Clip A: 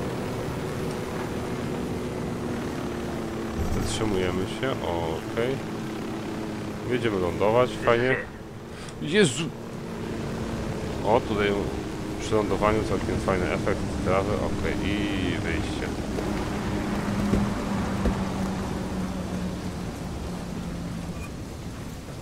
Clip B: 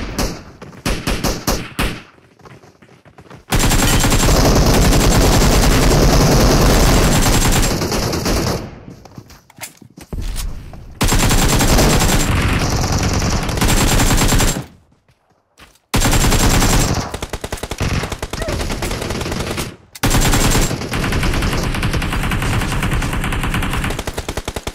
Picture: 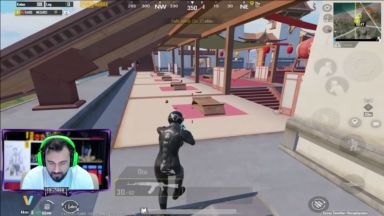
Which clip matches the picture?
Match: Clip B